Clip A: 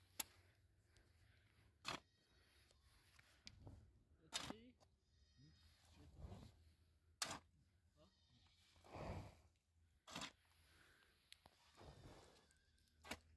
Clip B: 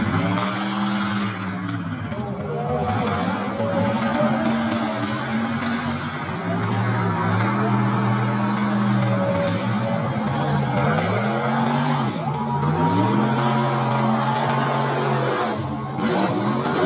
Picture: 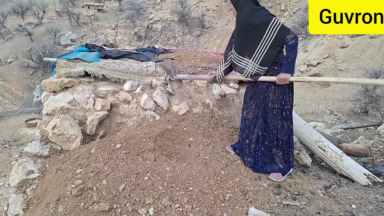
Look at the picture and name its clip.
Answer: A